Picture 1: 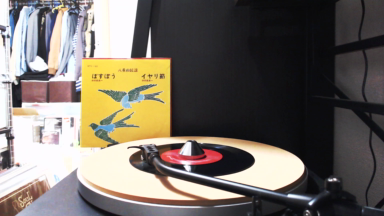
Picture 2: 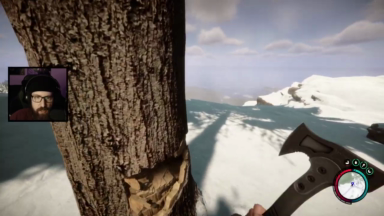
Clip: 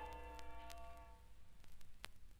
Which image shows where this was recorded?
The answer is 1